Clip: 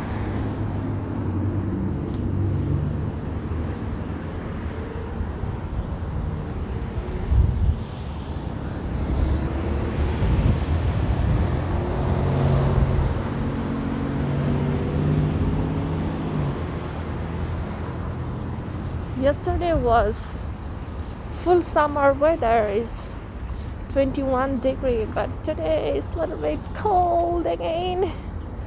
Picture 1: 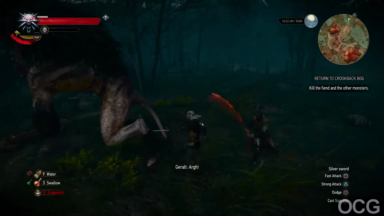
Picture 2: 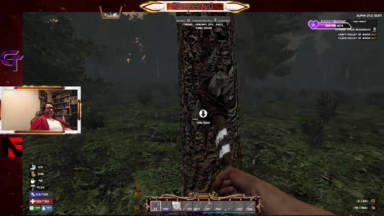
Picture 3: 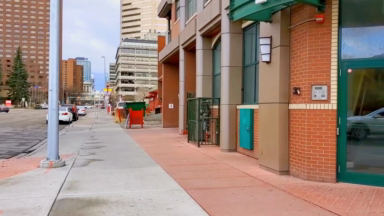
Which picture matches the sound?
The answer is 3